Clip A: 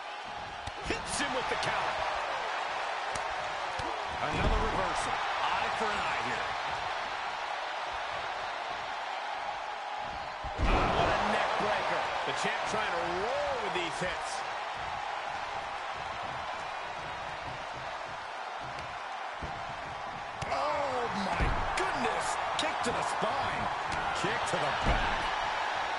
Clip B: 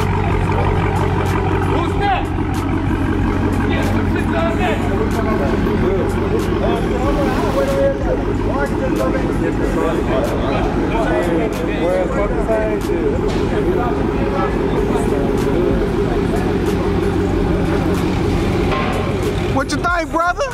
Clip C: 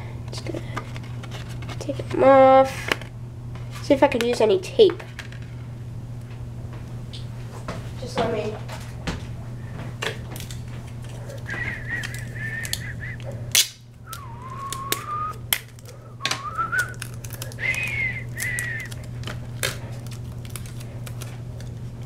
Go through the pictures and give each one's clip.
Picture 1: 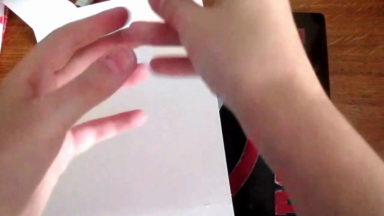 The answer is C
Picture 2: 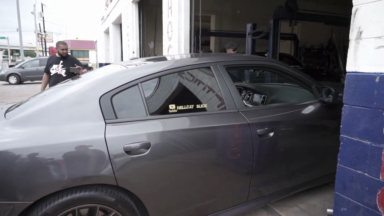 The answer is B